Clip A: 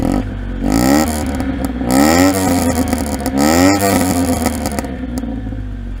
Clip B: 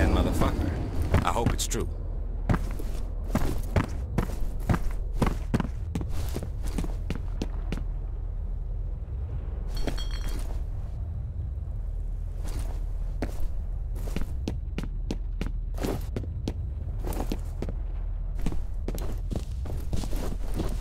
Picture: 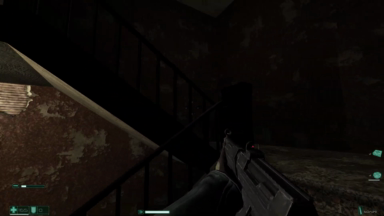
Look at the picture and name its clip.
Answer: B